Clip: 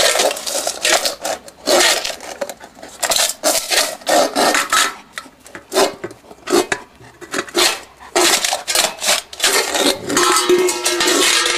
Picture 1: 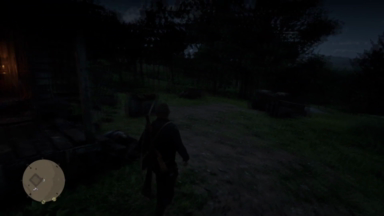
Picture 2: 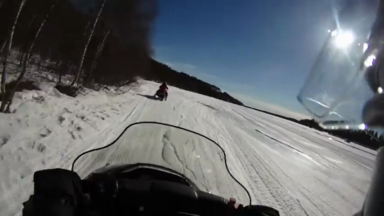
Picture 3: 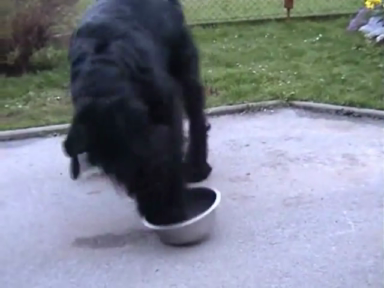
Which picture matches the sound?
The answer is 3